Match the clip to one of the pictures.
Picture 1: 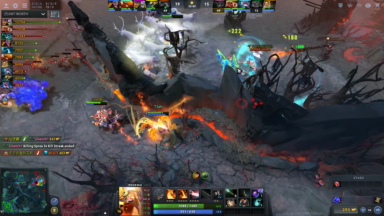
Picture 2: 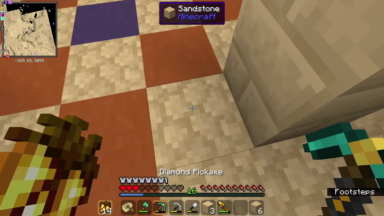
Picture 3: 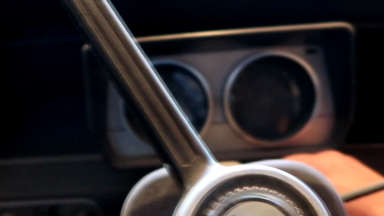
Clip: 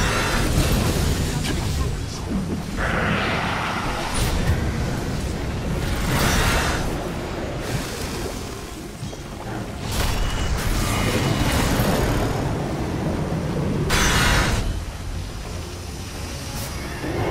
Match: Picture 1